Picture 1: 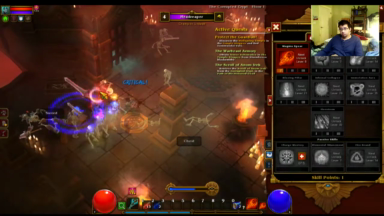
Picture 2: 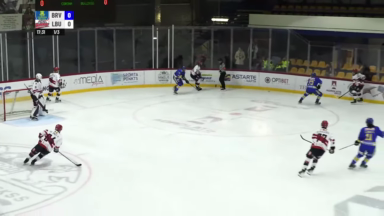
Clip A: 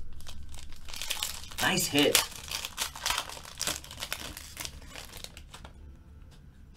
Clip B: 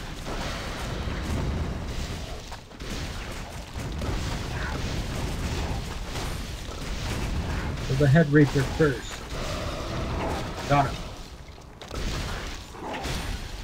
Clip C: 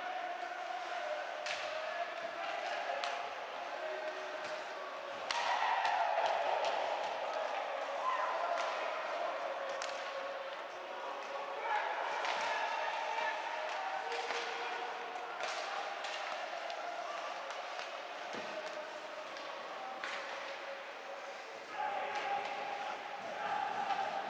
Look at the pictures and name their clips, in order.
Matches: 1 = B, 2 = C